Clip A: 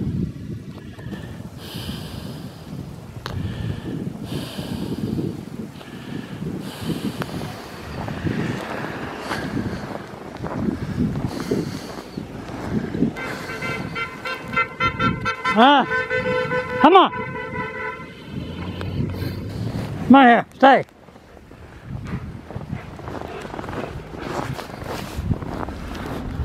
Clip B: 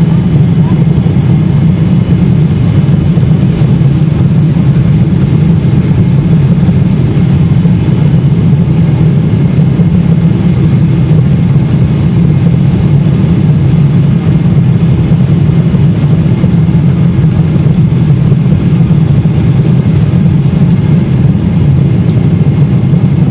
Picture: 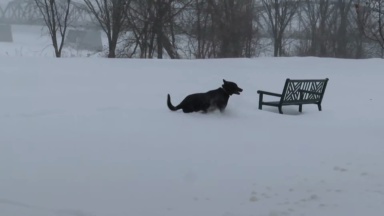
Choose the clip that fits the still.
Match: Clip A